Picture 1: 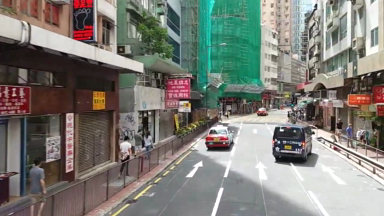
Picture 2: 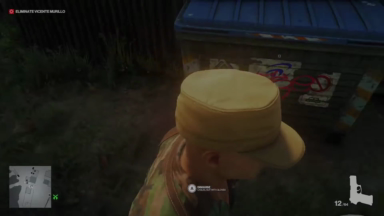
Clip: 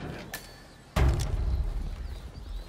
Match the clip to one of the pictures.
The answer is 2